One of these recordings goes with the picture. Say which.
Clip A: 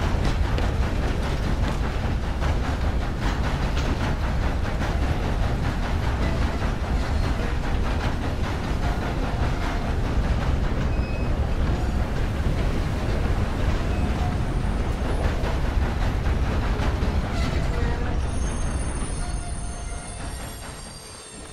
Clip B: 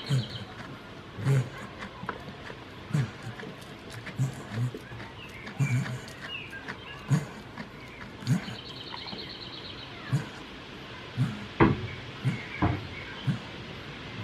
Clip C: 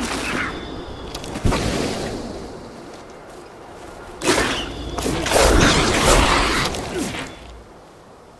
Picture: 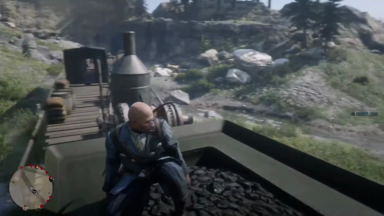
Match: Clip A